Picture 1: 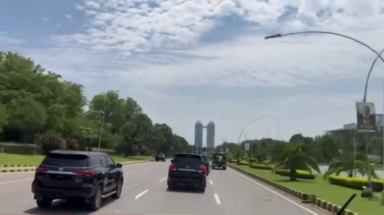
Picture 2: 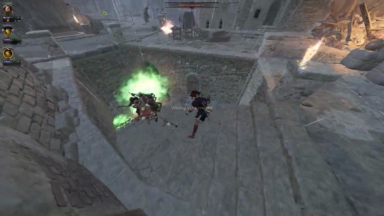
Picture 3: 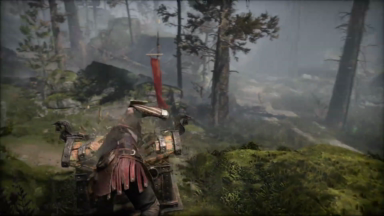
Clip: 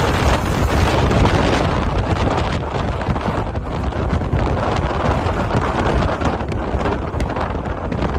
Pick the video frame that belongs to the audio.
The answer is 1